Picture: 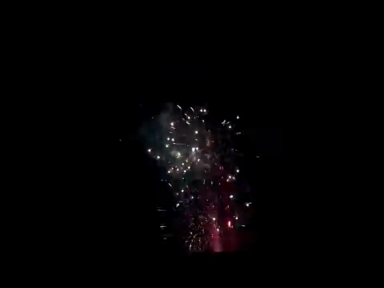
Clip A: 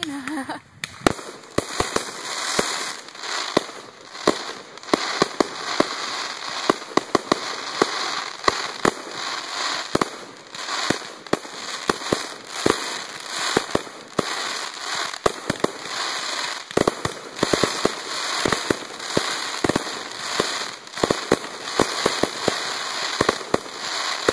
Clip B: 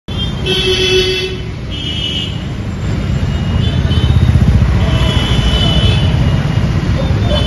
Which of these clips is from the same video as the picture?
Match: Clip A